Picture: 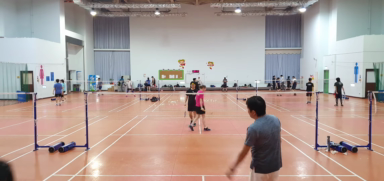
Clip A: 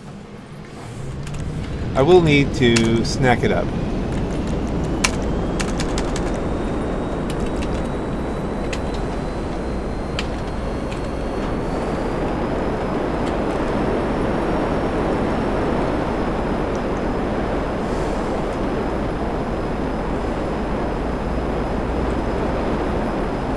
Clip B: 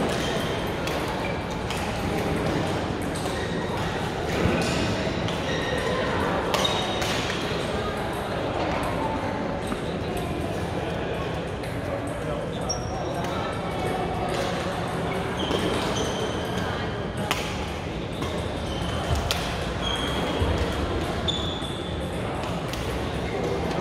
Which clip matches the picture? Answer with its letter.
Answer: B